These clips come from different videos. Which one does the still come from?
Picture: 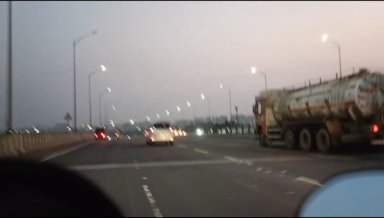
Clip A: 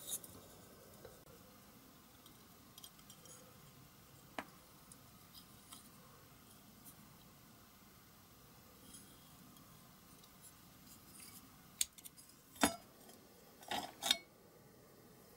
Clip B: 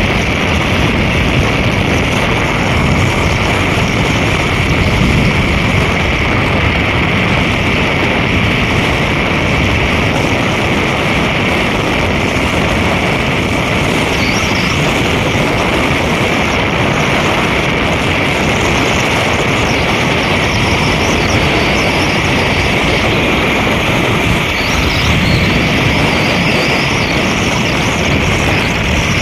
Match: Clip B